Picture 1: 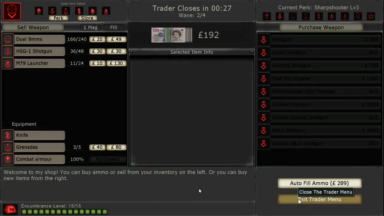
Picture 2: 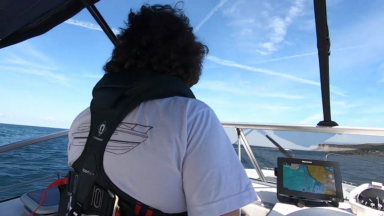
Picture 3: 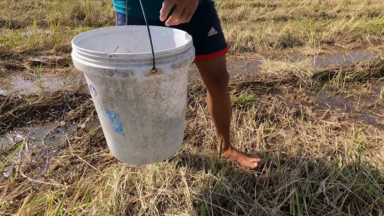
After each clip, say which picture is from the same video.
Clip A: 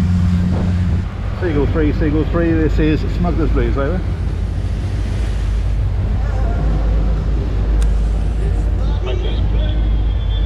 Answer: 2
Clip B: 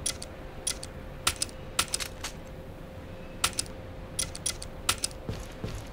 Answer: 1